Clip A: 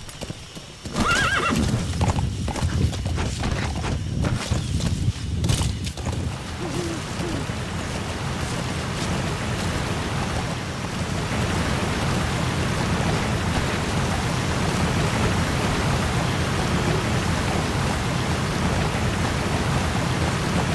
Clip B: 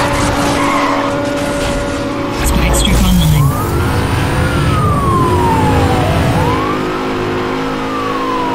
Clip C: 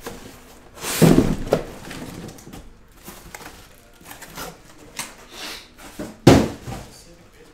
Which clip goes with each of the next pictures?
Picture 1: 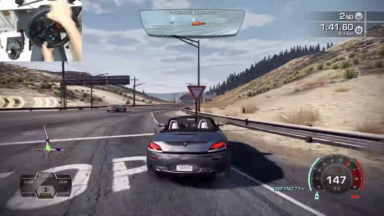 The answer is B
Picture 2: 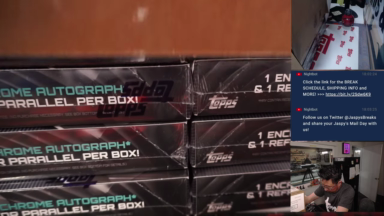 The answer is C